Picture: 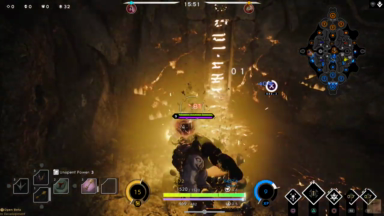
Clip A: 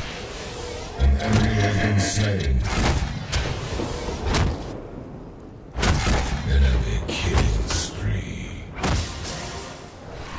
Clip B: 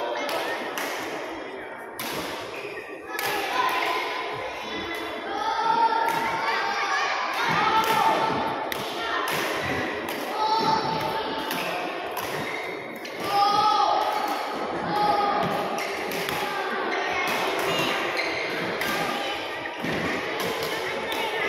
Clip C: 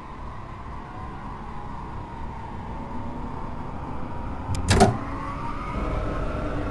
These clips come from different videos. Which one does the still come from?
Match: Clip A